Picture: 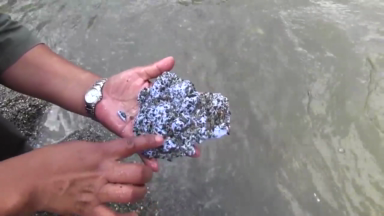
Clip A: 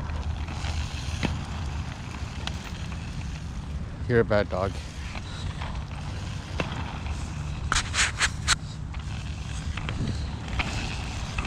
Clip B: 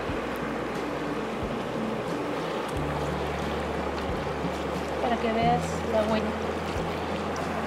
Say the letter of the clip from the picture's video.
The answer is B